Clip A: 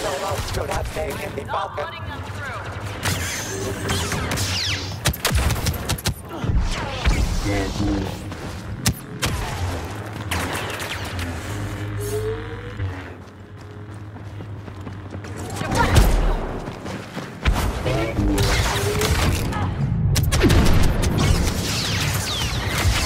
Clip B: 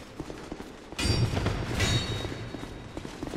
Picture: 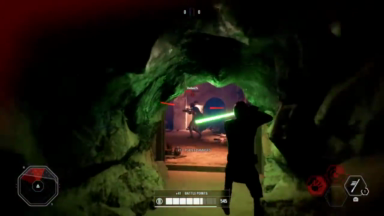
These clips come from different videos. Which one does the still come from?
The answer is A